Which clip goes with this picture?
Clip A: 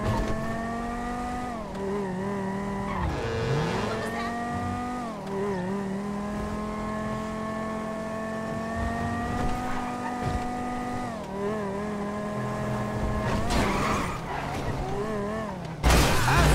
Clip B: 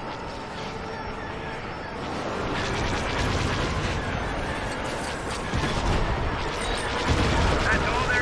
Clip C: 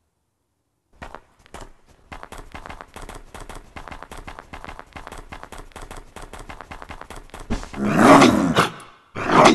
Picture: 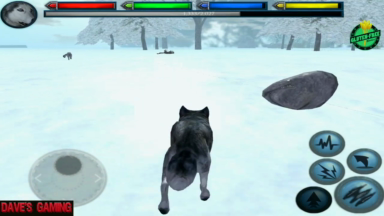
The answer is C